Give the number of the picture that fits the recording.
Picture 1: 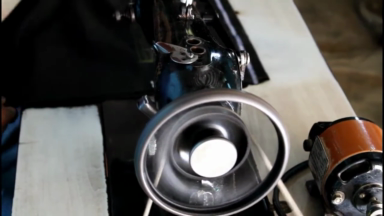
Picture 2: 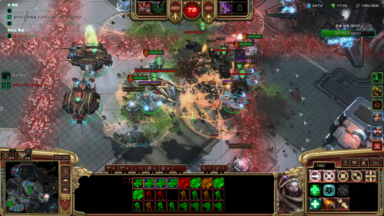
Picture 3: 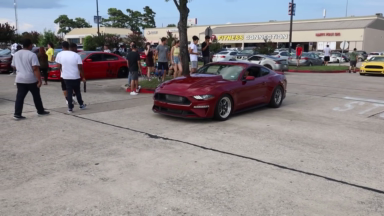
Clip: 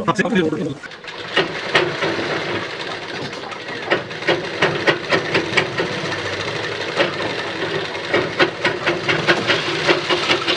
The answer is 1